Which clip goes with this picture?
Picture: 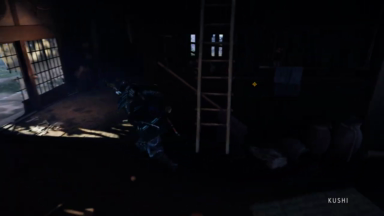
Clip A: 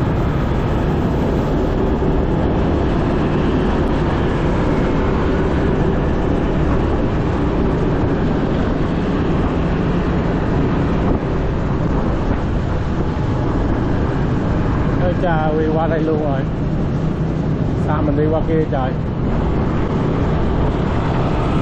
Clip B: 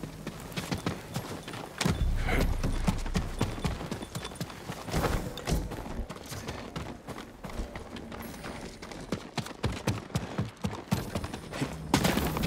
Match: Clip B